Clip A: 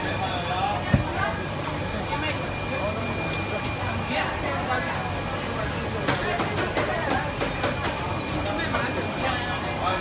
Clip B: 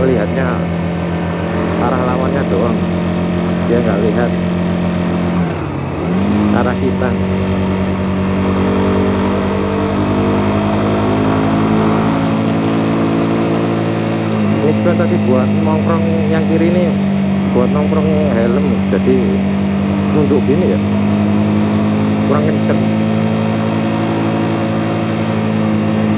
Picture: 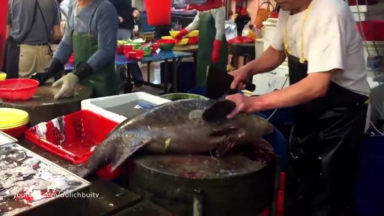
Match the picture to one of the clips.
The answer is A